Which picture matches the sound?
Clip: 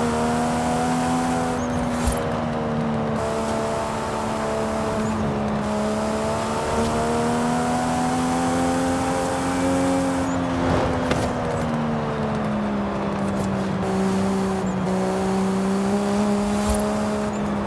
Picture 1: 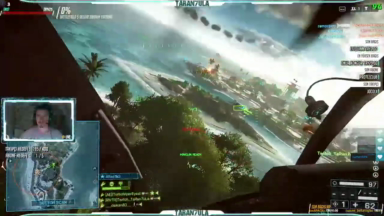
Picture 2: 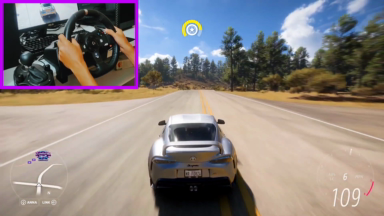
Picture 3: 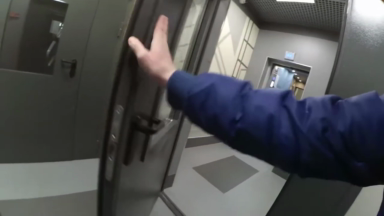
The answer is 2